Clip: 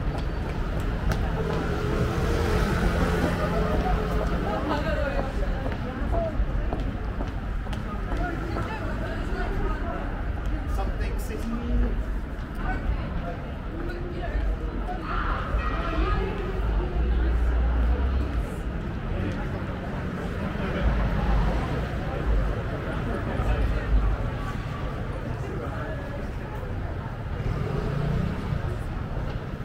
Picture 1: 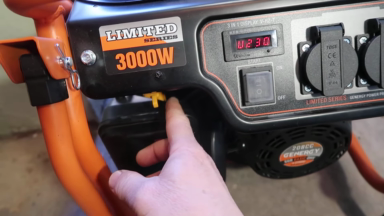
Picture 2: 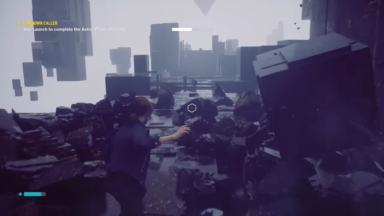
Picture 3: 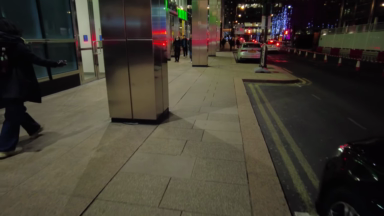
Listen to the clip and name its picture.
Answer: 3